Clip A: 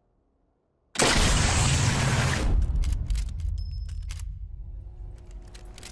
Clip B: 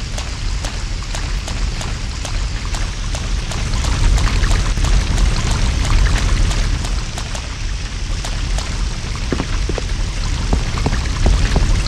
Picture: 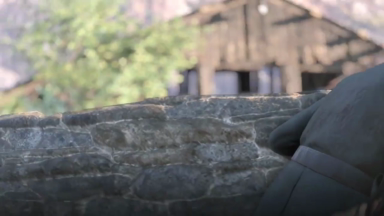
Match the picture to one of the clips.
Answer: A